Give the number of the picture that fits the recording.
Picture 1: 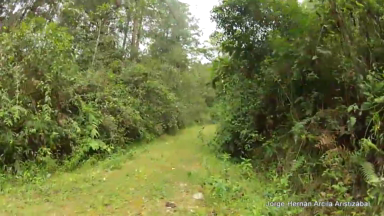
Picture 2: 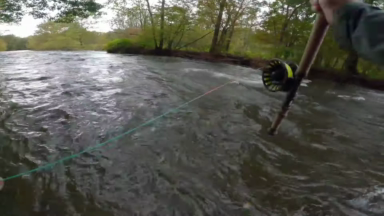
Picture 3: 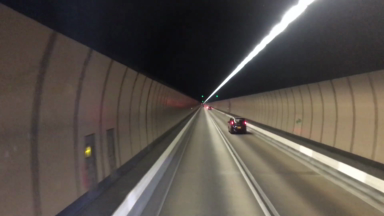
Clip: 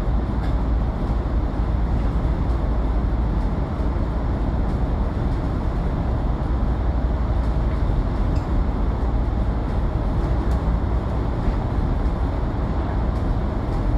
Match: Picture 3